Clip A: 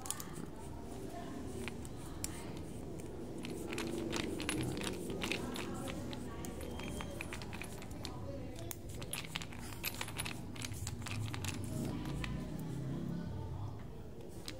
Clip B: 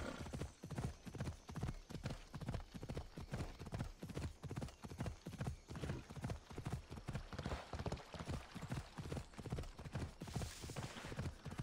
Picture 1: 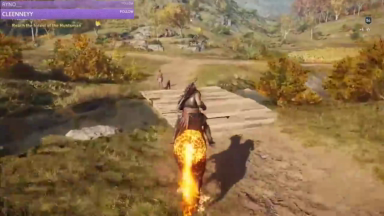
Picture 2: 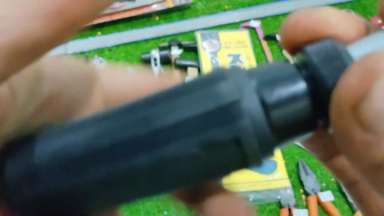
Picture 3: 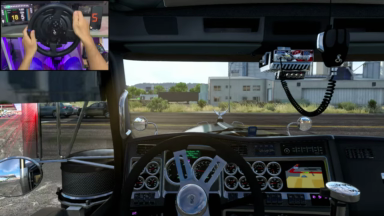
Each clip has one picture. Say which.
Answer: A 2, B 1